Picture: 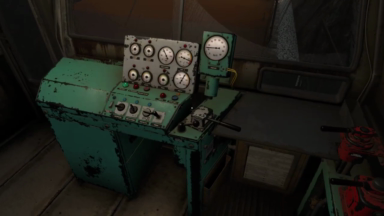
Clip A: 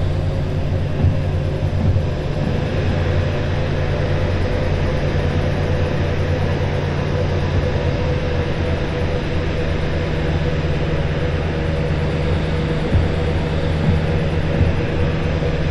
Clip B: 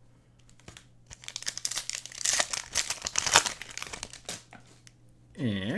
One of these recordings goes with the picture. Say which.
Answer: A